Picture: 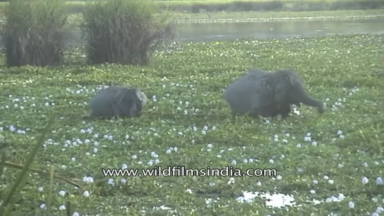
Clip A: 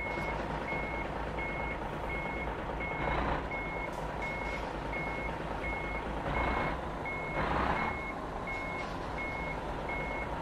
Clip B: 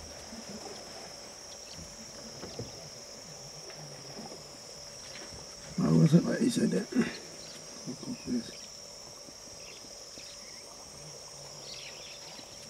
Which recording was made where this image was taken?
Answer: B